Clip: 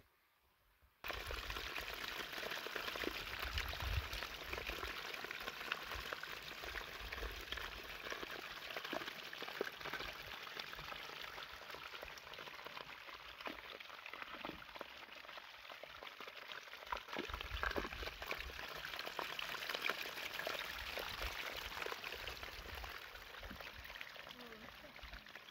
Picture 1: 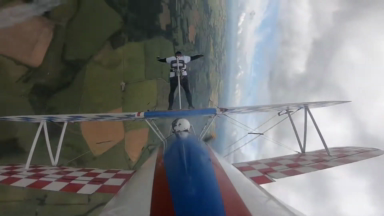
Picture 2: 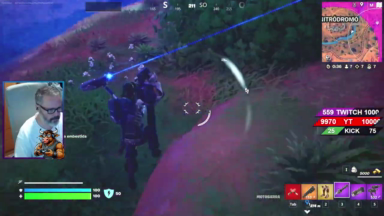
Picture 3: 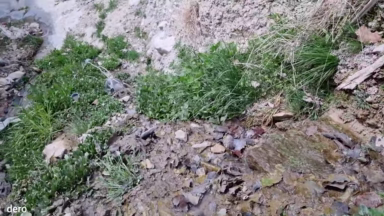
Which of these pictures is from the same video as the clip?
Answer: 3